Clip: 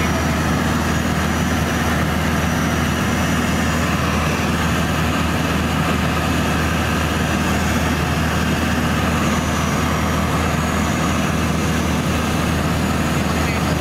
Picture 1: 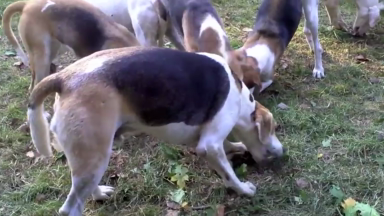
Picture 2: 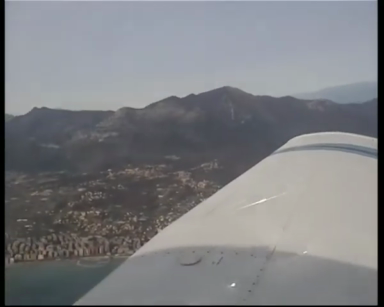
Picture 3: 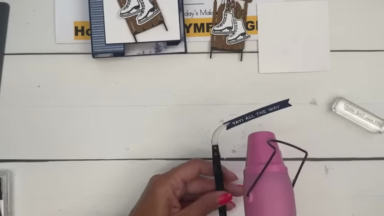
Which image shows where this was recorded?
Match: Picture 2